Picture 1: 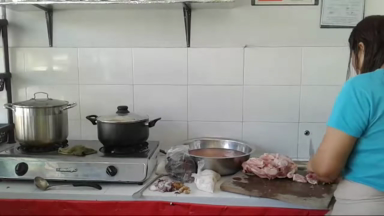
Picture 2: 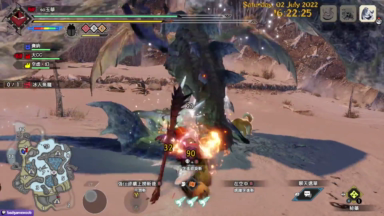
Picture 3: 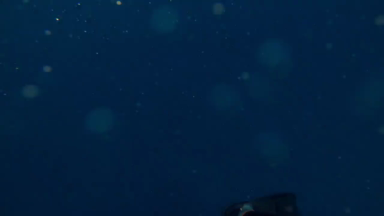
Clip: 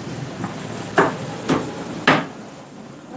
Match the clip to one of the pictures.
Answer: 1